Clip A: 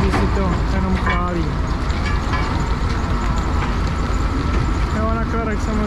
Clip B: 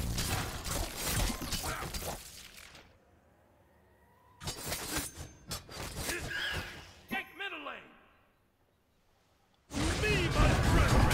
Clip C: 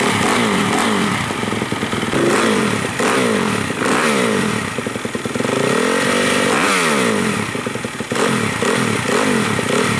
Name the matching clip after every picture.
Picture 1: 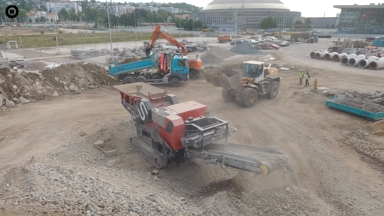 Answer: A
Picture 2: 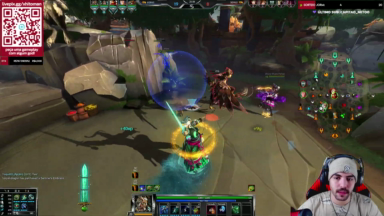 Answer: B